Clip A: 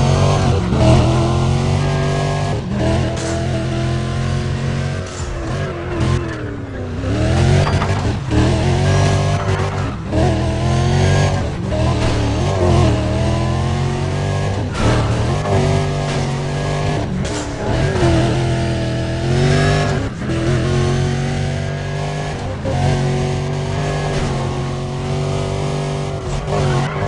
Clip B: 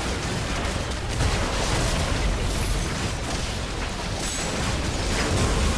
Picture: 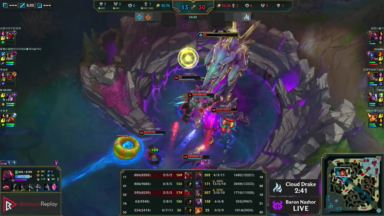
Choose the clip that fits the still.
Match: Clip B